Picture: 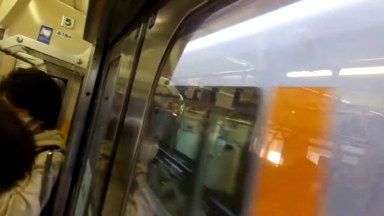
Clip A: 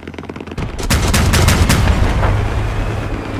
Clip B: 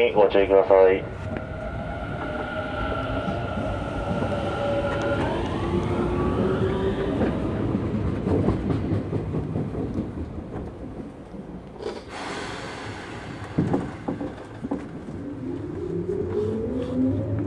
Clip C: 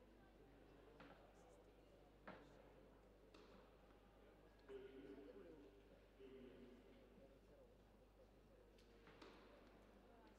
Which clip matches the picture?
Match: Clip B